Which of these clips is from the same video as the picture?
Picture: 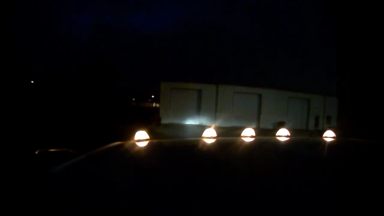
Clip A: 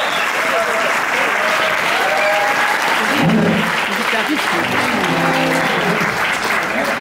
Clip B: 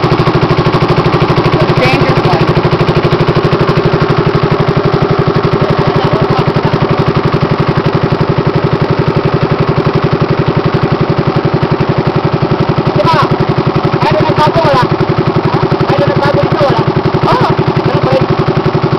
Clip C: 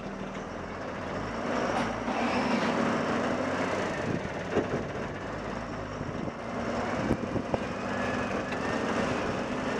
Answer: C